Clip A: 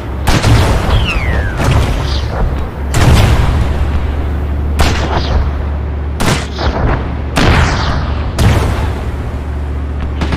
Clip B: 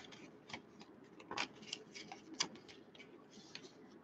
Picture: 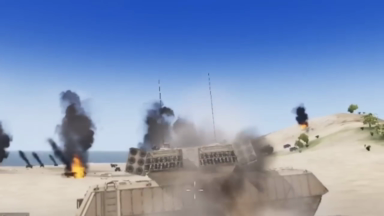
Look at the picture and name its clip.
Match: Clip A